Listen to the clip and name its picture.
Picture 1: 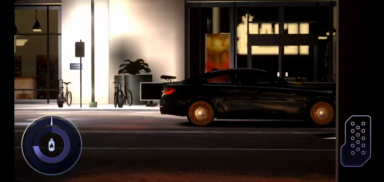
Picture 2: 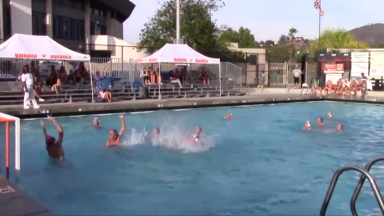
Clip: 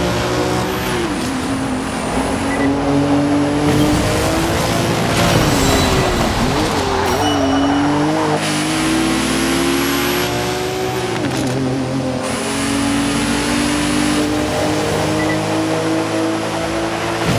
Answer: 1